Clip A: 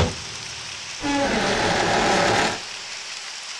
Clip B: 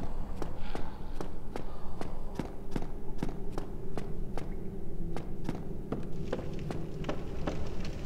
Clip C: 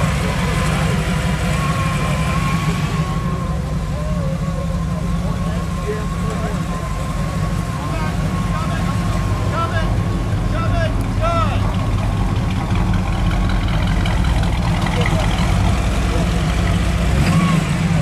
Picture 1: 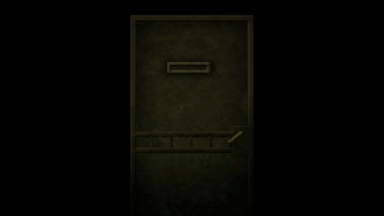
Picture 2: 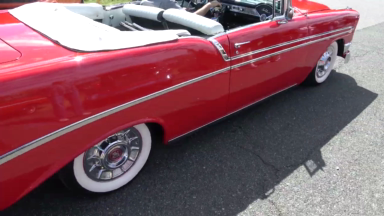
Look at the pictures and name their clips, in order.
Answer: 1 A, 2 C